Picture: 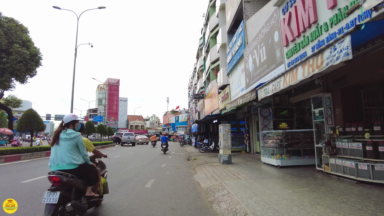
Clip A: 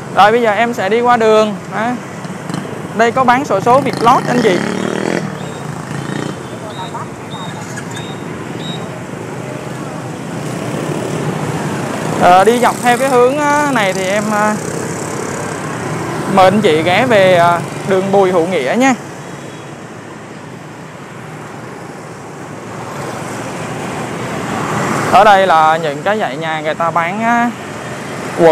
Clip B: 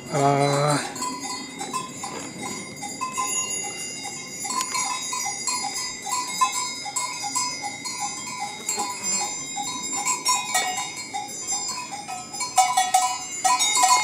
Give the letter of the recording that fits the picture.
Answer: A